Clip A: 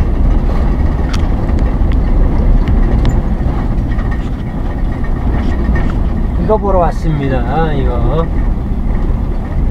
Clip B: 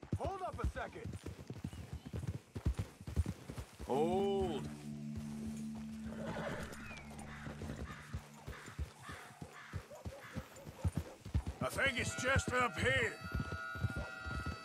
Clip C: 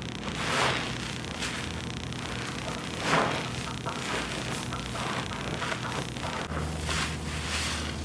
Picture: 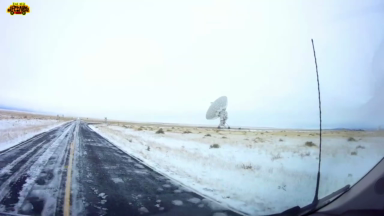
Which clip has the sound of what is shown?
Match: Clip A